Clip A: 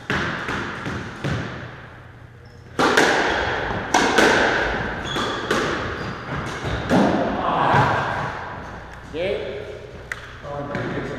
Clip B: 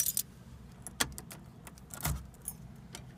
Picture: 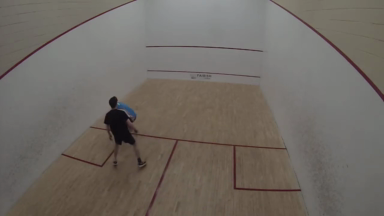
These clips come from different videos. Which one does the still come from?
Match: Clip A